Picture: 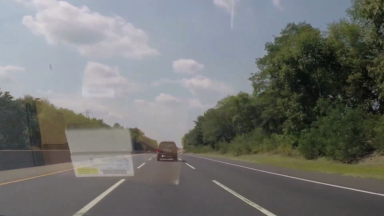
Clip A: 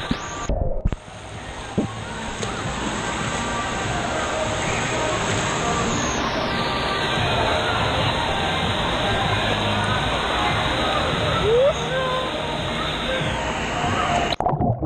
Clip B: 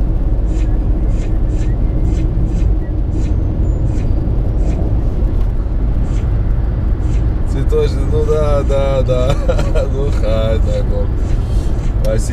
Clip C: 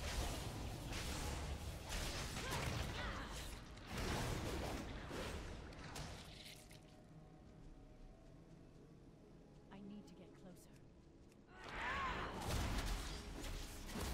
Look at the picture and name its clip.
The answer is B